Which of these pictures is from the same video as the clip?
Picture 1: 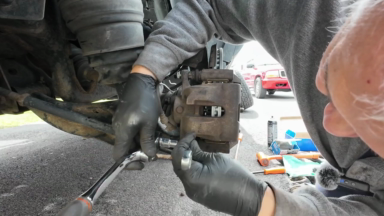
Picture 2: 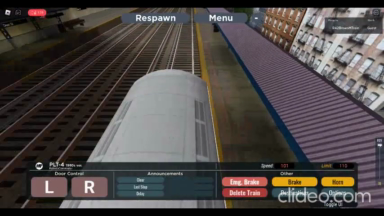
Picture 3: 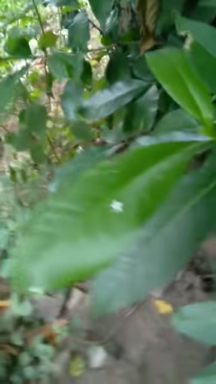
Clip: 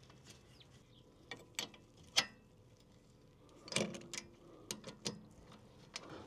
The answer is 1